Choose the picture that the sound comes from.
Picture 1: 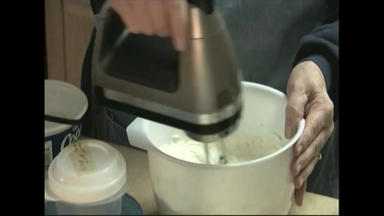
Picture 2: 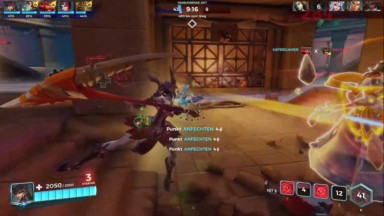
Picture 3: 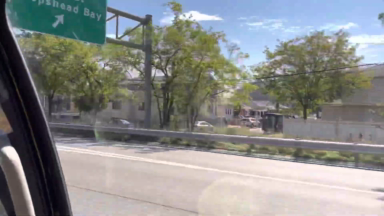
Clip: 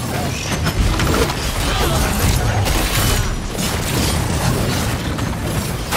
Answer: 2